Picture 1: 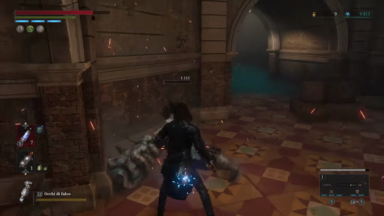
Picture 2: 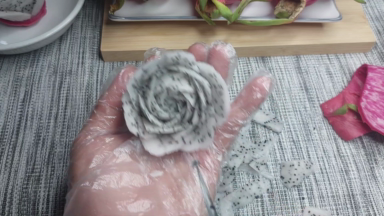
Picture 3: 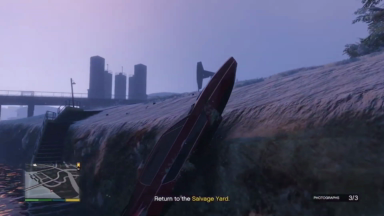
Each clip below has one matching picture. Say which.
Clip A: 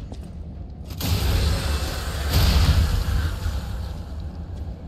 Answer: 1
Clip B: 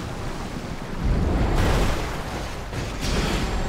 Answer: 3